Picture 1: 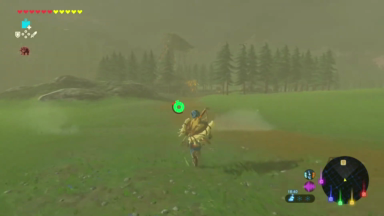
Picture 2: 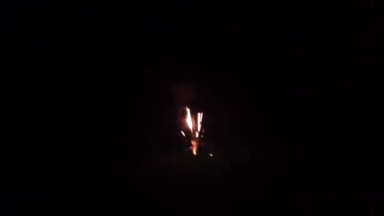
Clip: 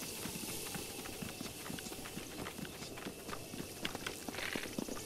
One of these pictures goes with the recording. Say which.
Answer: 1